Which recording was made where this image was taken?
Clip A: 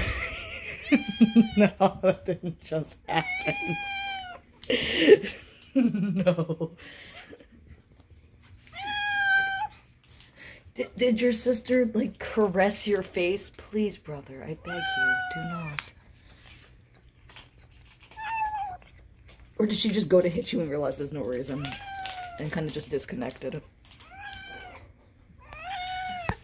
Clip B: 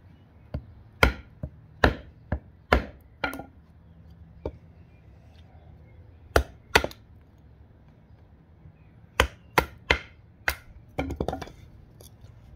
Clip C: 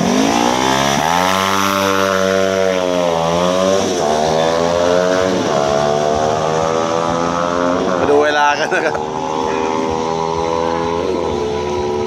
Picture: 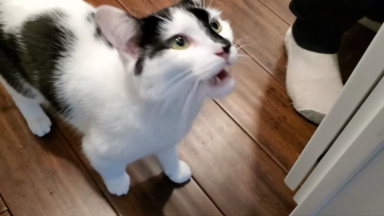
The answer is A